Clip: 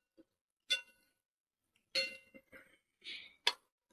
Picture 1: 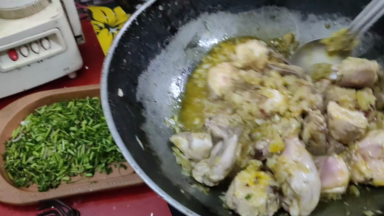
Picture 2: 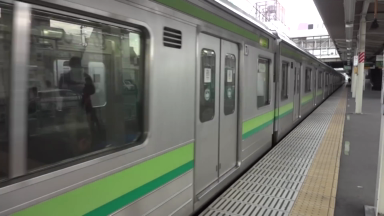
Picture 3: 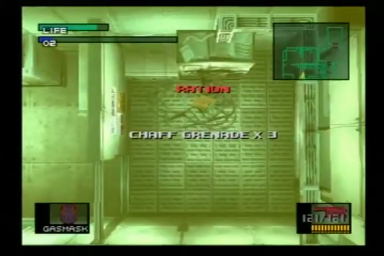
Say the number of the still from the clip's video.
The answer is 1